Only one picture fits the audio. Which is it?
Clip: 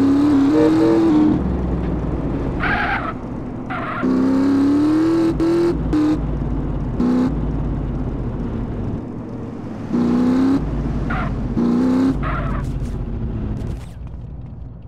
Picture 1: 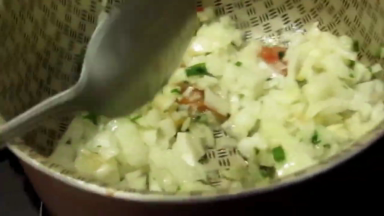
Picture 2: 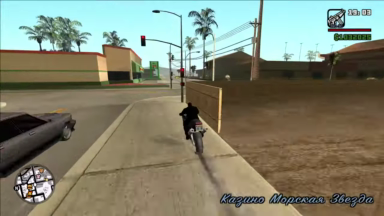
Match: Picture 2